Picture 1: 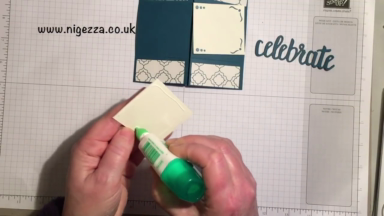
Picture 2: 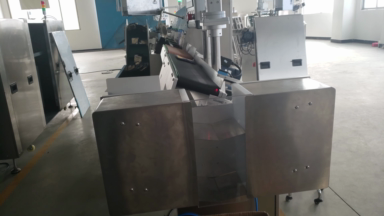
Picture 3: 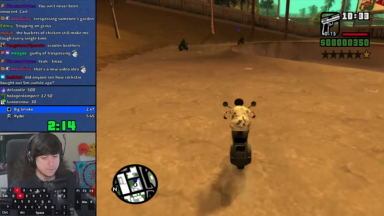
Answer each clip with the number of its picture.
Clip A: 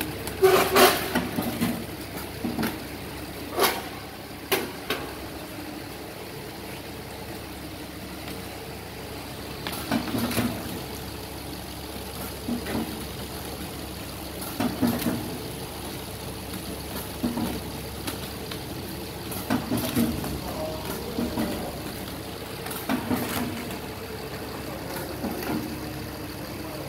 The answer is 2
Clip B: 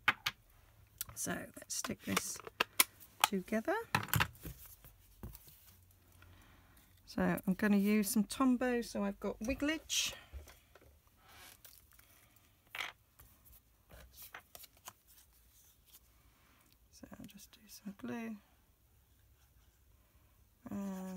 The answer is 1